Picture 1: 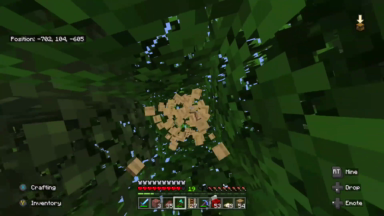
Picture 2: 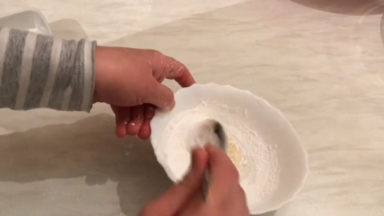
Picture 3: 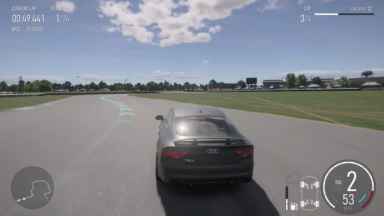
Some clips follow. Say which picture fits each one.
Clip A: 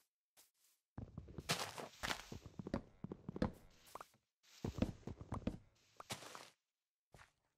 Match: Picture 1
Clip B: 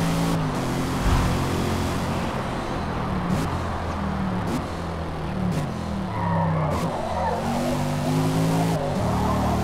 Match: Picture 3